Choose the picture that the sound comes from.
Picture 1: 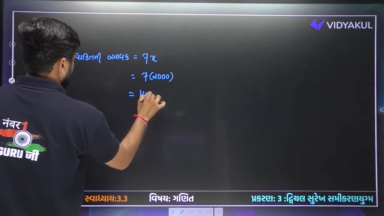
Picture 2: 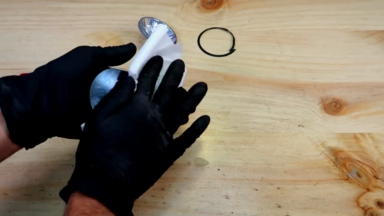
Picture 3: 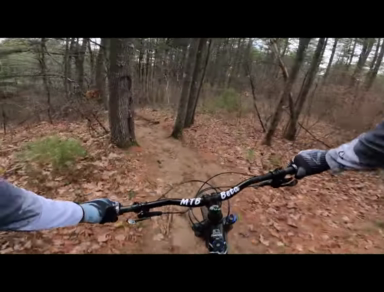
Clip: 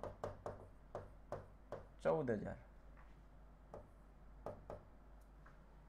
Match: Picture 1